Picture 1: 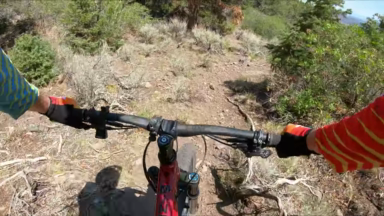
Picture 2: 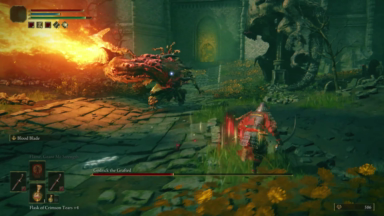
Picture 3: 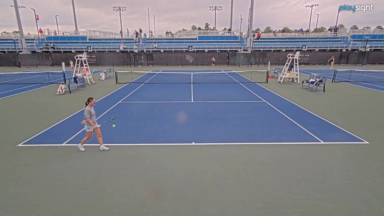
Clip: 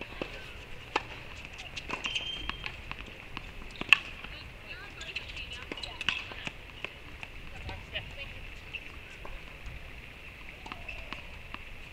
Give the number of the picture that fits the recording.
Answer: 3